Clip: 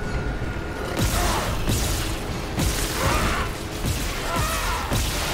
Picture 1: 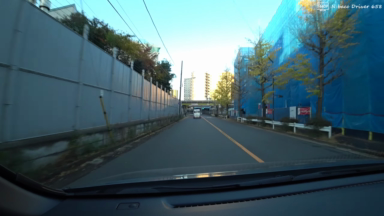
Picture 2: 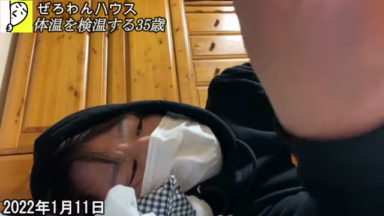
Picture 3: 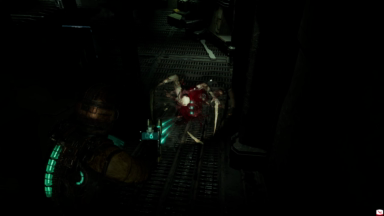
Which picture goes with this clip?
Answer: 3